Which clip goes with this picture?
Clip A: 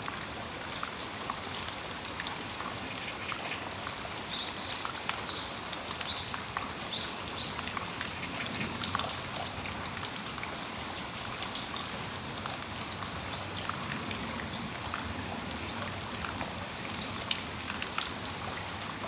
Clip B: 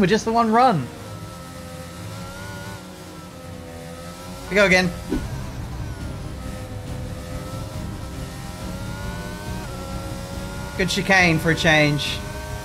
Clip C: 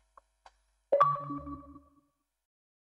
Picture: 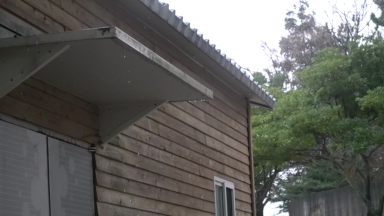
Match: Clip A